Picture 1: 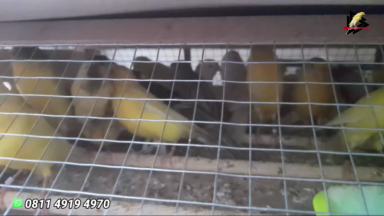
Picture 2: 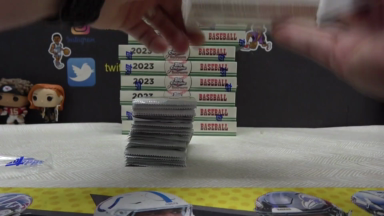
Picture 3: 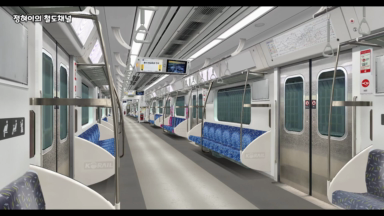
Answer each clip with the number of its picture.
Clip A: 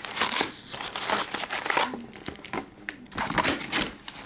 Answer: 2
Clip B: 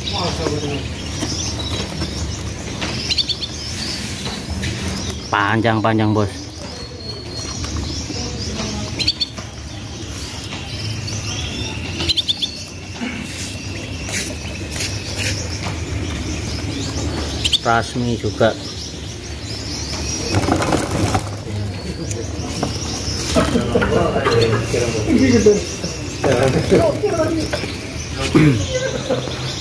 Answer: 1